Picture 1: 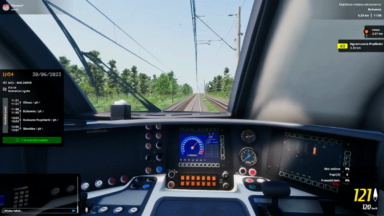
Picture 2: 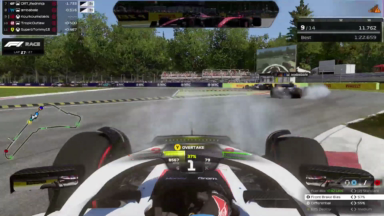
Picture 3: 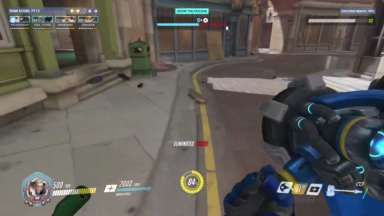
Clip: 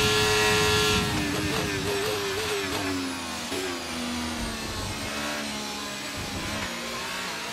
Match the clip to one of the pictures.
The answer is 2